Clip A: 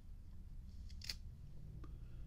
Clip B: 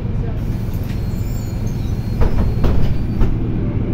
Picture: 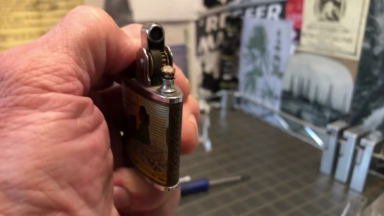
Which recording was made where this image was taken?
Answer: A